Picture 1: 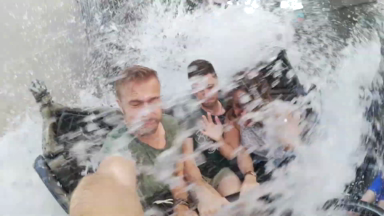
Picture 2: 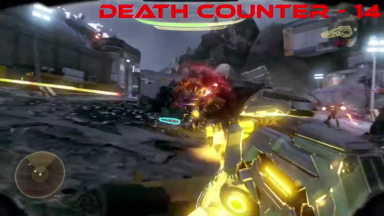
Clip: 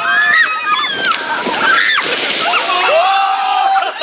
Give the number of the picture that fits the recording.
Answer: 1